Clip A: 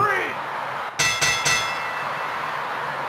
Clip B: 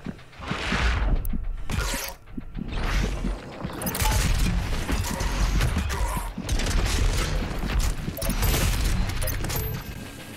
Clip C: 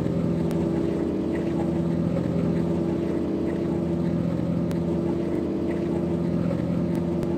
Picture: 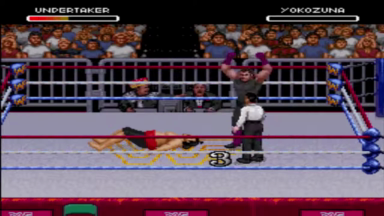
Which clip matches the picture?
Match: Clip A